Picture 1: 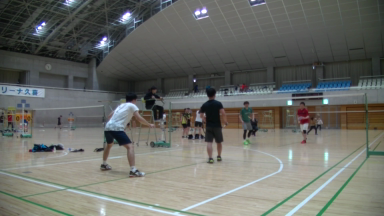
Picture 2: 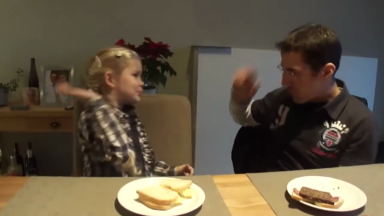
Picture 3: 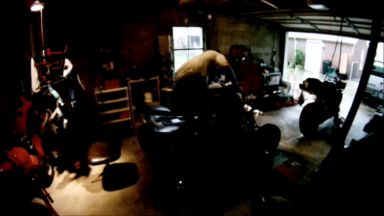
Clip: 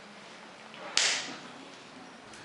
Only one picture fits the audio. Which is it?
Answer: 2